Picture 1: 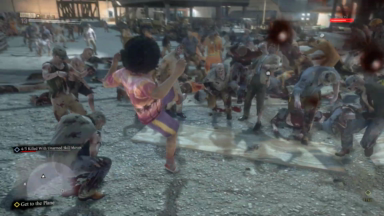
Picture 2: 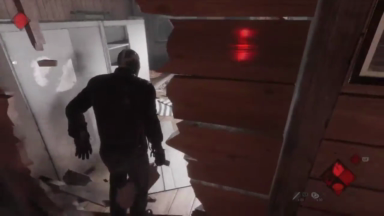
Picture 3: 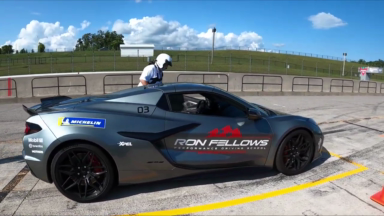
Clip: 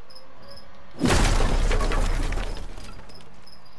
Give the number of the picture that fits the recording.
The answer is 2